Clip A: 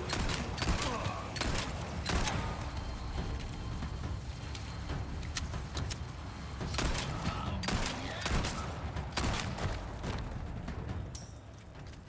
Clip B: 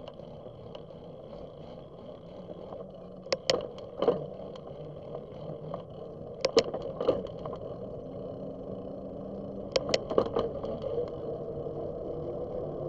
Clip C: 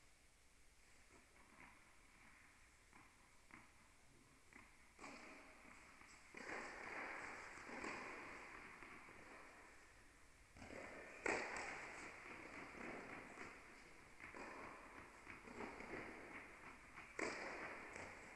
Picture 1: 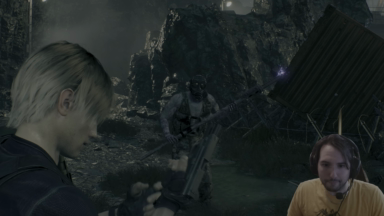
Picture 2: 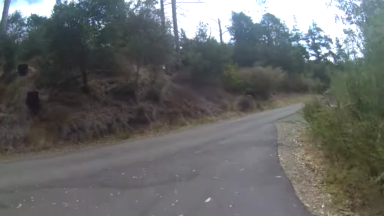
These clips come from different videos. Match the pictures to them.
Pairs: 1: A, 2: B